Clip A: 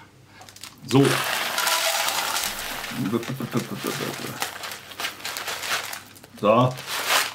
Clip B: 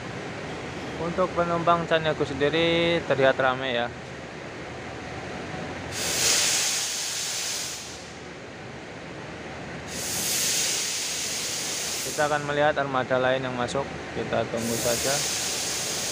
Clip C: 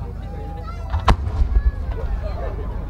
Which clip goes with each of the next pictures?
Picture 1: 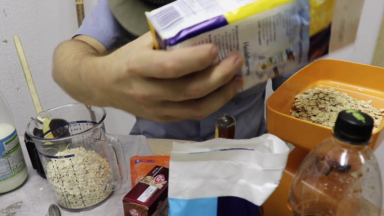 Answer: A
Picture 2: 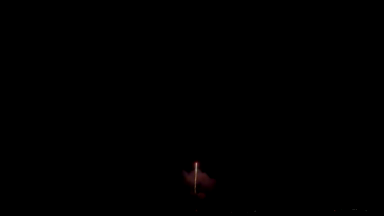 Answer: C